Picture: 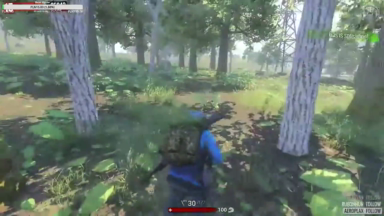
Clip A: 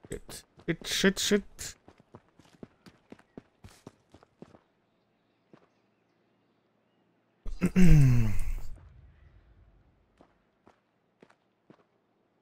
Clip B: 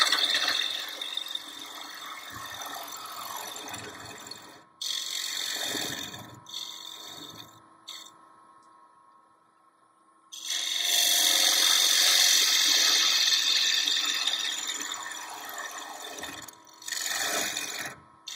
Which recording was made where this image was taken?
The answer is A